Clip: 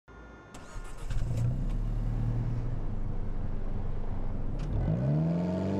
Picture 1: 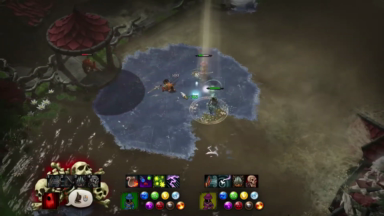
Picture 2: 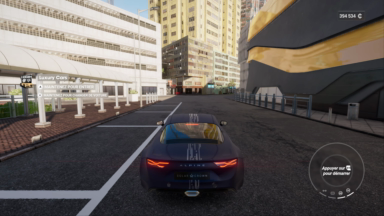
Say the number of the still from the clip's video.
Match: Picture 2